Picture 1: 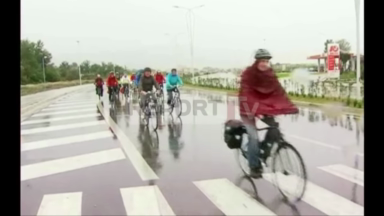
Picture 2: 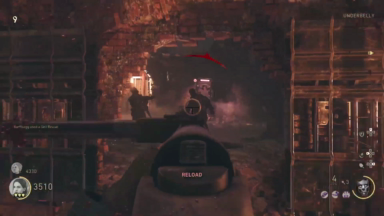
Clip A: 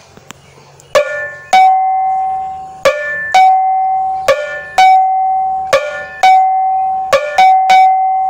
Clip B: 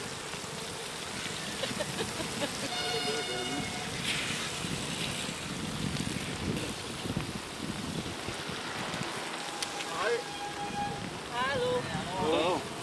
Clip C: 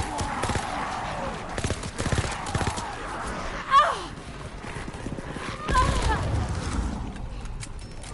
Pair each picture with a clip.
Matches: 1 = B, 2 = C